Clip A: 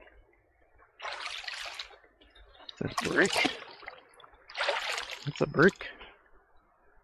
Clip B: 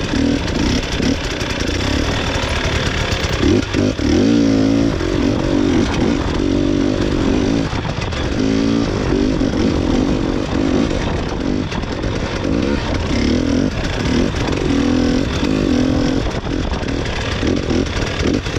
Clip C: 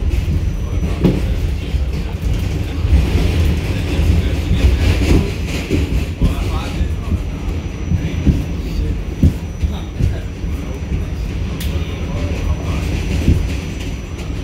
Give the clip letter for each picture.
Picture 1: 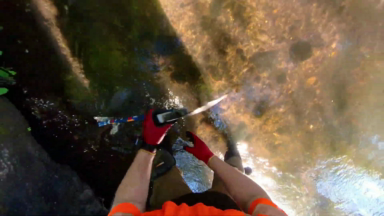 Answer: A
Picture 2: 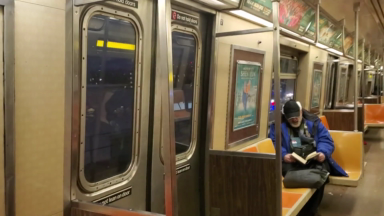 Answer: C